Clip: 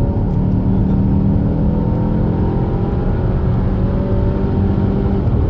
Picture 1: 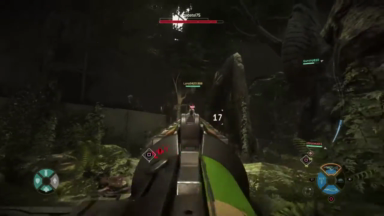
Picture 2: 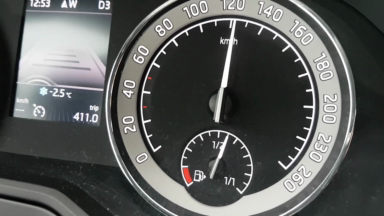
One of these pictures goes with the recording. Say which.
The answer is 2